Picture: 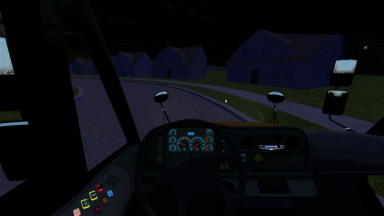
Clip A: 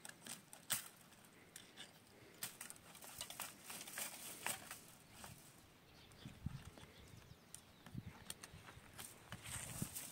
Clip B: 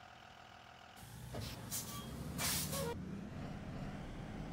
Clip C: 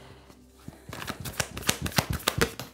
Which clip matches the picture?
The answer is B